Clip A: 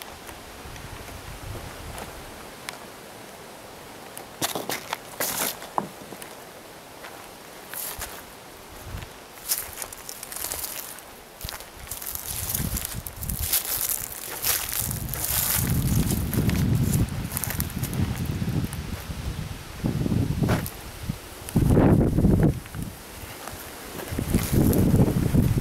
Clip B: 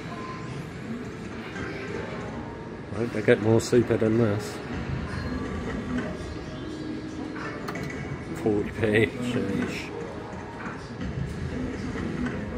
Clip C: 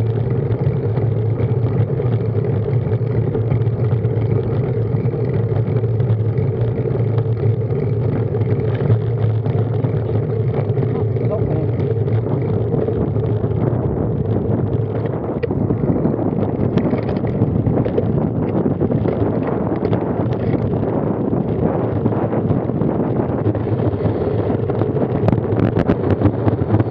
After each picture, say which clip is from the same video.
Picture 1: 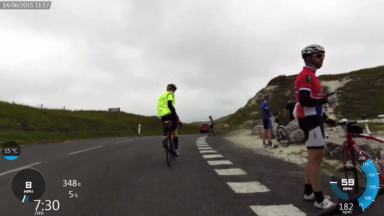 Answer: C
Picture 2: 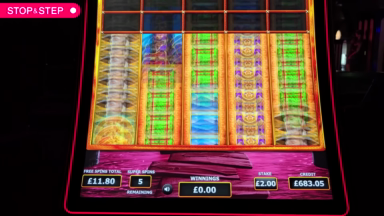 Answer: B